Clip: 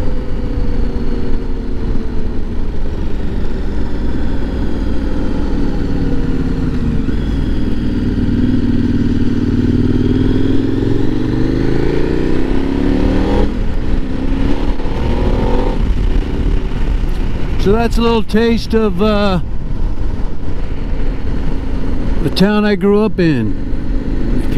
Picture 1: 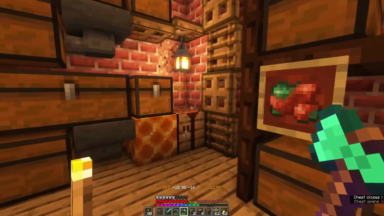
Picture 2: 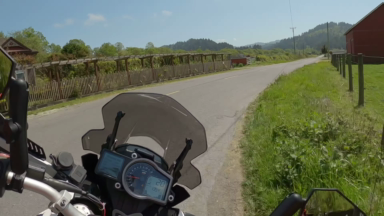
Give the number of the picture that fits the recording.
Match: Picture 2